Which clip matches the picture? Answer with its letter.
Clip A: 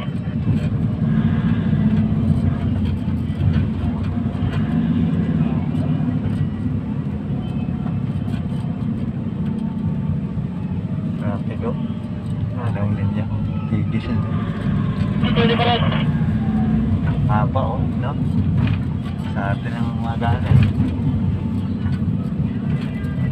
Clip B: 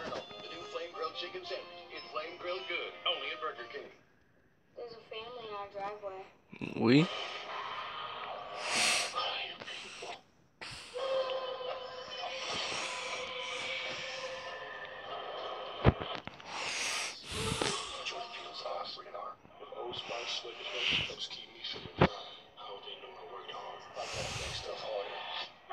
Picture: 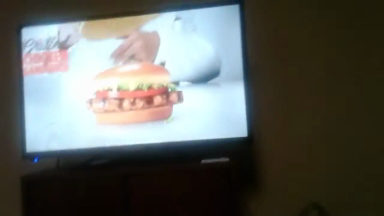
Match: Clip B